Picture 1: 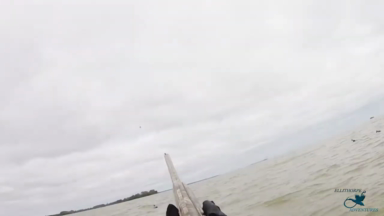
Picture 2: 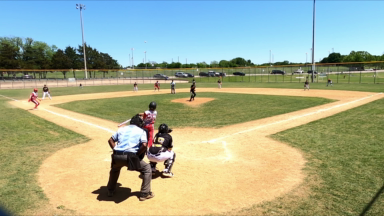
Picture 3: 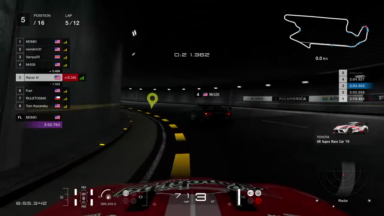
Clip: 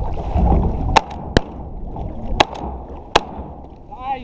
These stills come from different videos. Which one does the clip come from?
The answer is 1